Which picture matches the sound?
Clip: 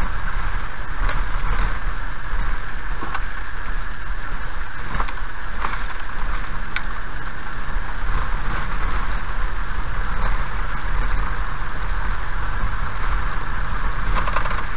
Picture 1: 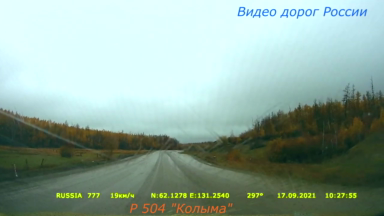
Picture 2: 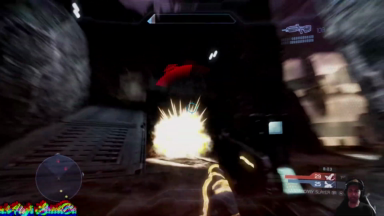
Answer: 1